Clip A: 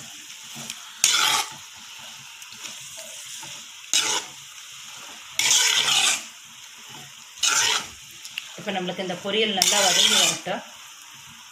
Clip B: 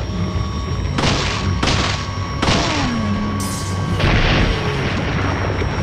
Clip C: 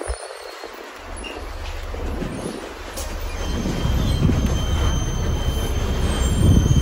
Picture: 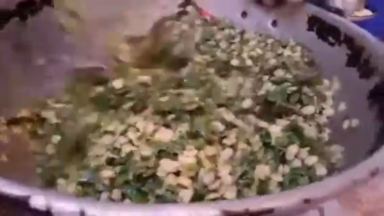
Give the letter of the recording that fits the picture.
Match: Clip A